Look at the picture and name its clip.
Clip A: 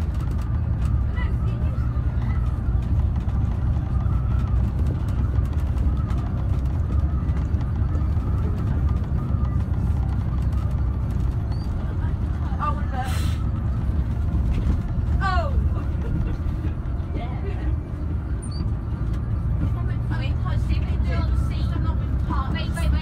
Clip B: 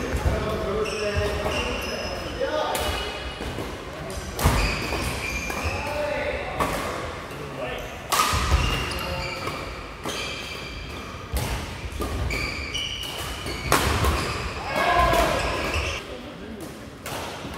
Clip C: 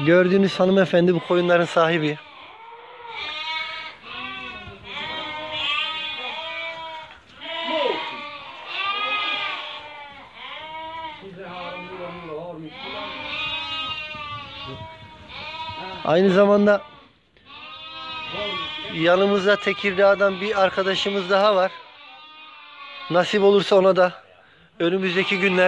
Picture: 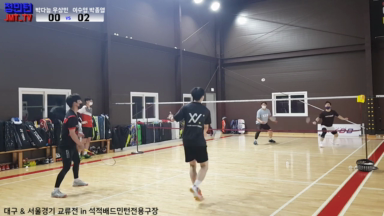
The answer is B